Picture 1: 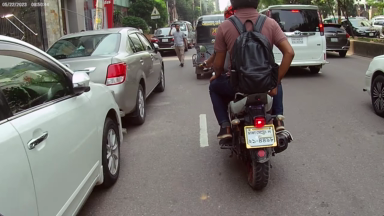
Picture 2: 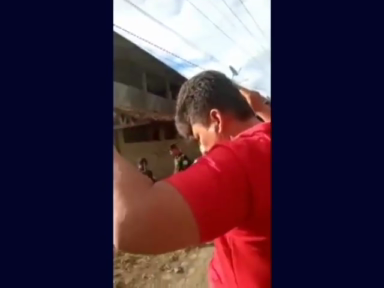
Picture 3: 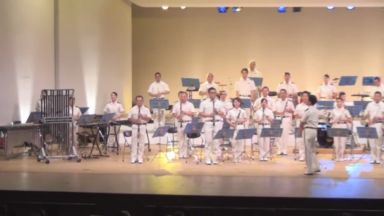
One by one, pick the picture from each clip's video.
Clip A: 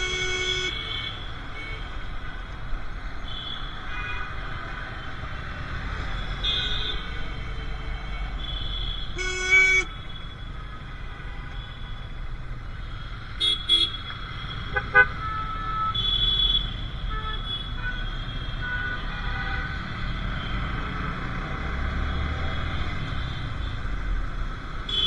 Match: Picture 1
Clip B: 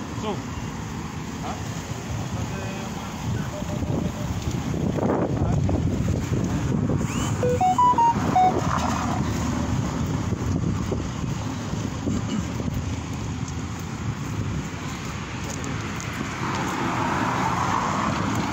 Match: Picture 2